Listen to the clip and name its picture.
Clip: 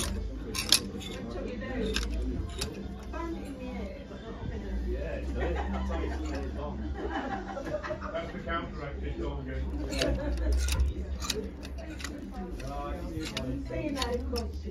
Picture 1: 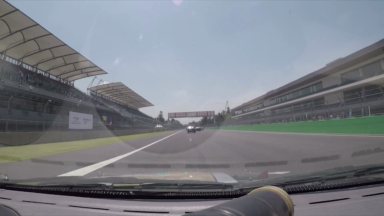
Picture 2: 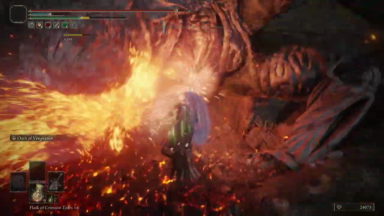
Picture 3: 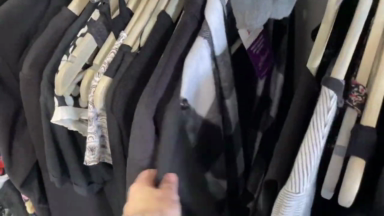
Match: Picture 3